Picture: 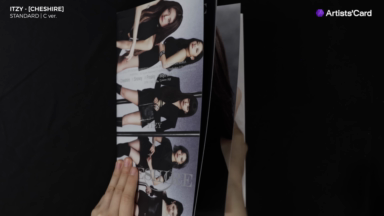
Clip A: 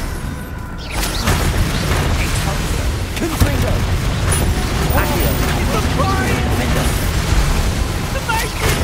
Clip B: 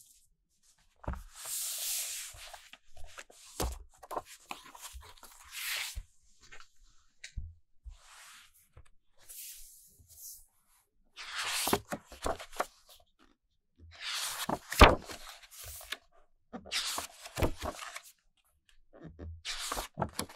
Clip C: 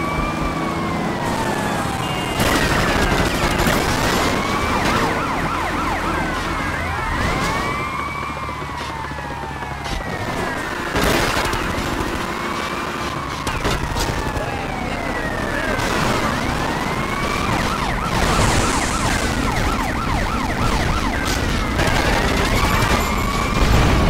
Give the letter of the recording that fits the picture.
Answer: B